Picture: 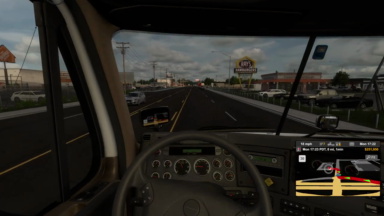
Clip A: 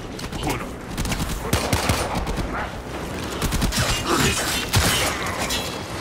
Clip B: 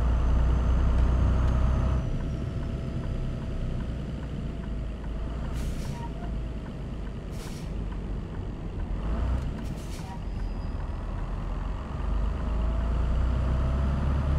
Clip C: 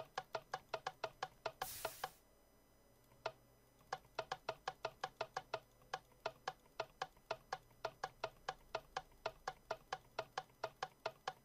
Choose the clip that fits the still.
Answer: B